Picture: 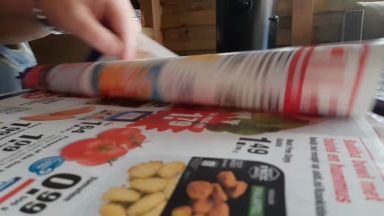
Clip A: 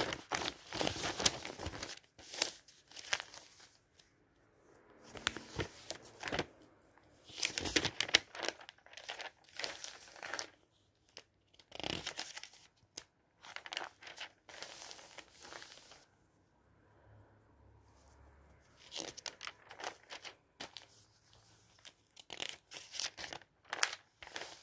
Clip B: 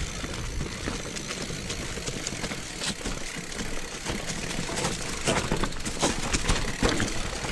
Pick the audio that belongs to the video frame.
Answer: A